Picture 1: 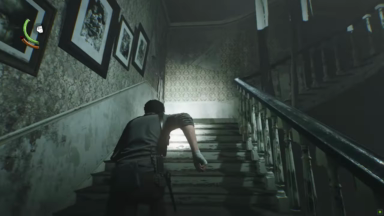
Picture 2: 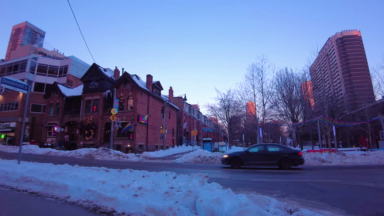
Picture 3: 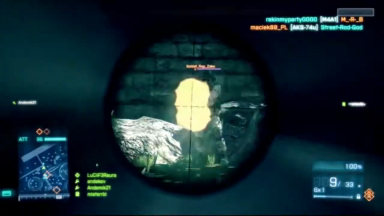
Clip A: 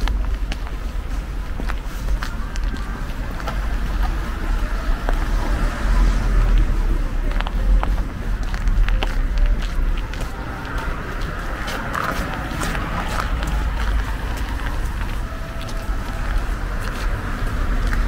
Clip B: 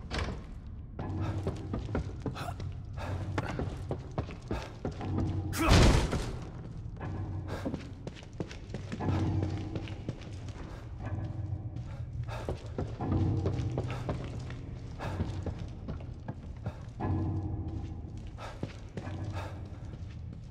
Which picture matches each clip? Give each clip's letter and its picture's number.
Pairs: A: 2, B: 1